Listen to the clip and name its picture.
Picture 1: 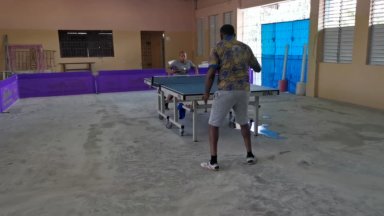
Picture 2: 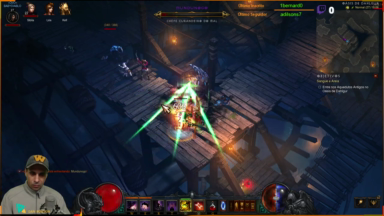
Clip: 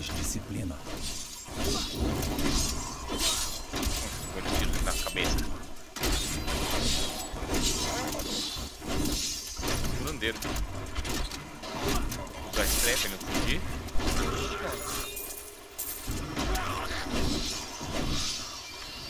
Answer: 2